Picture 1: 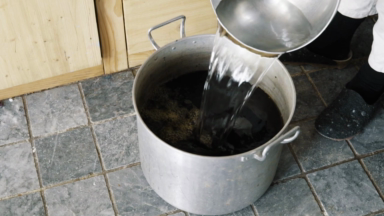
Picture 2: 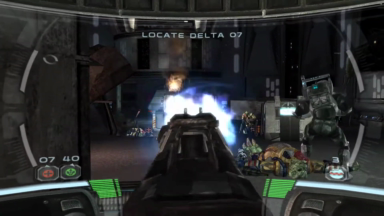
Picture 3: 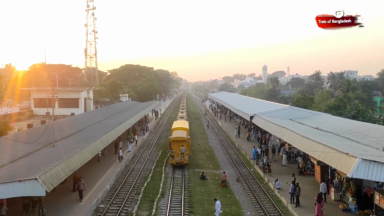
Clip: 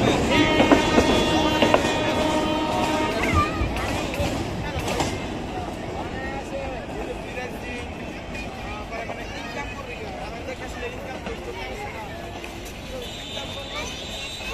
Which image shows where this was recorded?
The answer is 3